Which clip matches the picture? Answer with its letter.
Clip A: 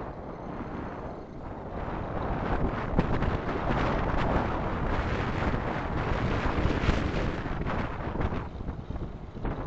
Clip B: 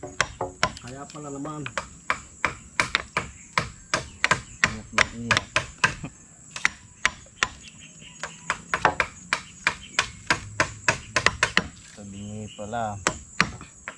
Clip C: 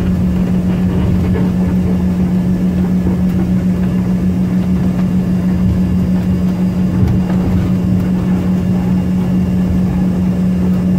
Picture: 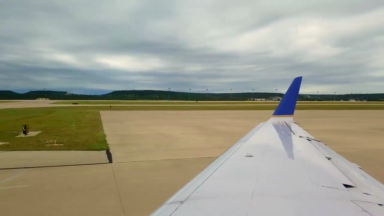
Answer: C